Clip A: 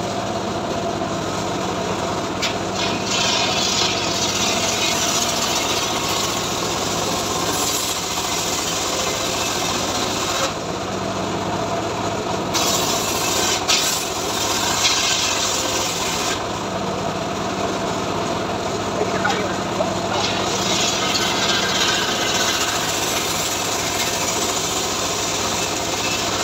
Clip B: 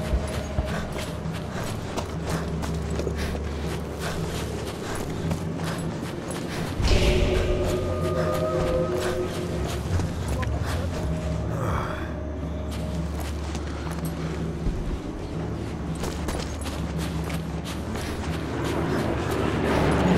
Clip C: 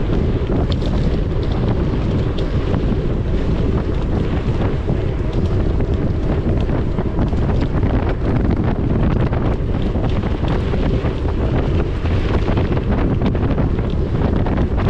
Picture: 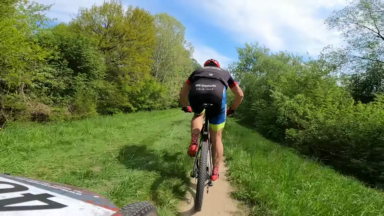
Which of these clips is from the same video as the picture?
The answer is C